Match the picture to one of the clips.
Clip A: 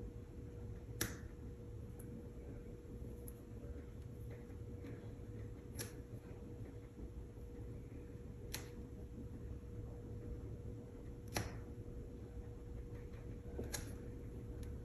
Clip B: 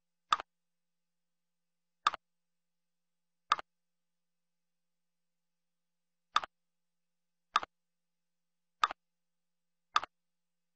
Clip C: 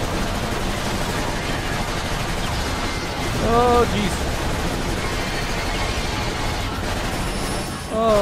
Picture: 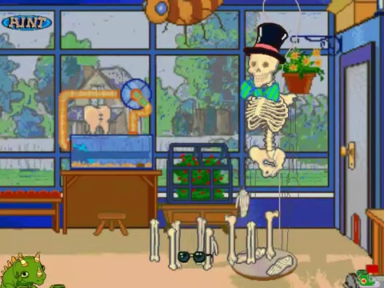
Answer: B